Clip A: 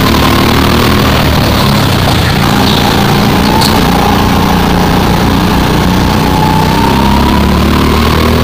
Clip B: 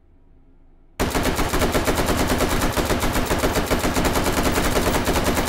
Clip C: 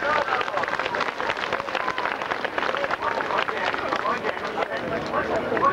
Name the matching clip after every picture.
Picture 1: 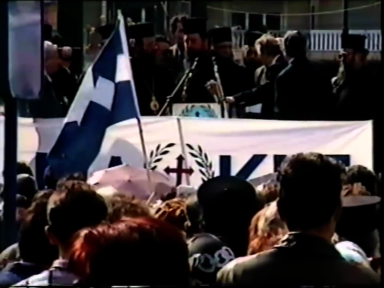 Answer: C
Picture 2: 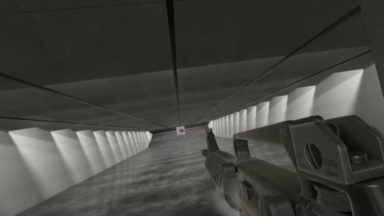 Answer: B